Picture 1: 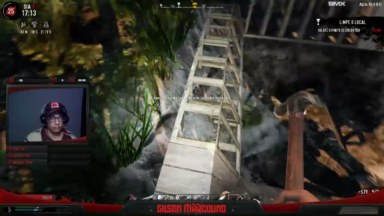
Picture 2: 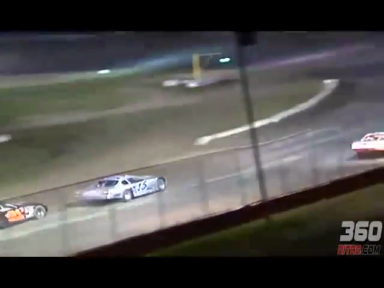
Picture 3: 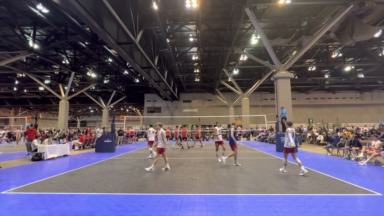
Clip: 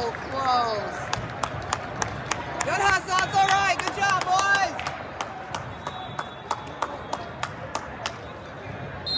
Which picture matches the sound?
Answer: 3